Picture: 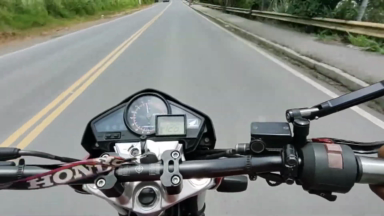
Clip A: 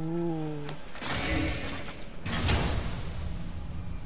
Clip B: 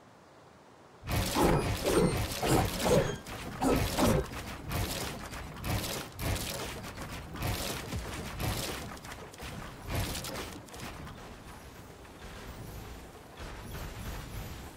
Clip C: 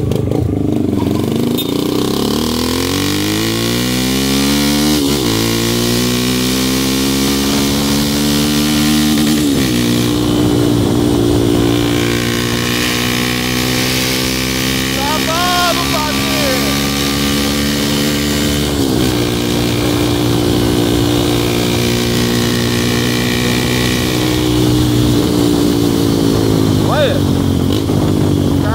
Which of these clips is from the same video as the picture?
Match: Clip C